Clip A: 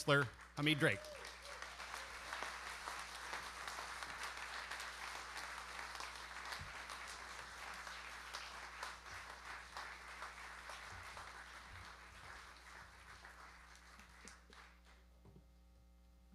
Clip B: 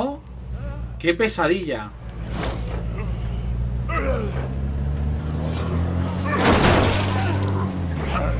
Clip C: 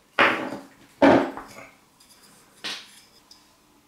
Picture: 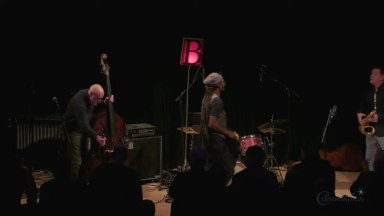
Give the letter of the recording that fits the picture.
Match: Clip A